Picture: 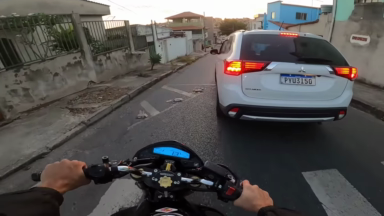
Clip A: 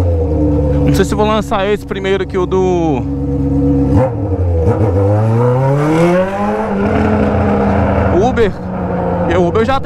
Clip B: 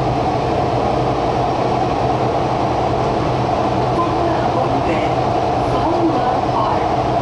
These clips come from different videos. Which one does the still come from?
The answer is A